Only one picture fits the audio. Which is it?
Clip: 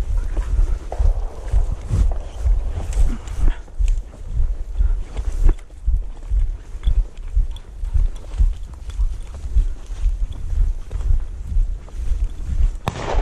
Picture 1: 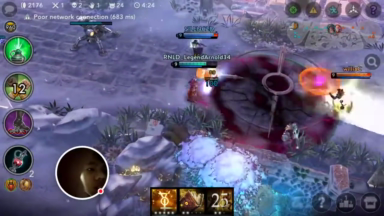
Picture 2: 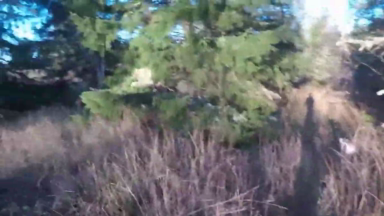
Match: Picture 2